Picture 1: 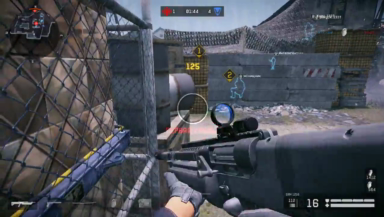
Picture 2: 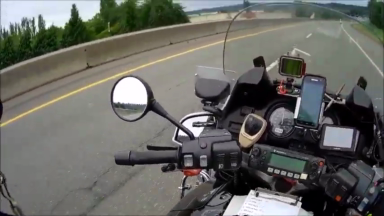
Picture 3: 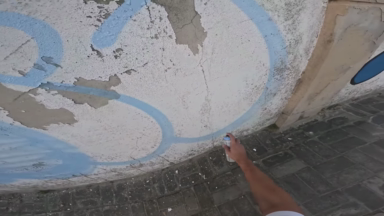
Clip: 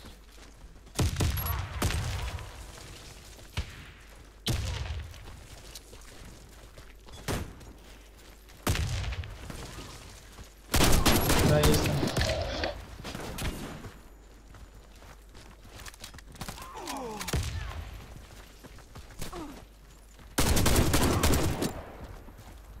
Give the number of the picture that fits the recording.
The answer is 1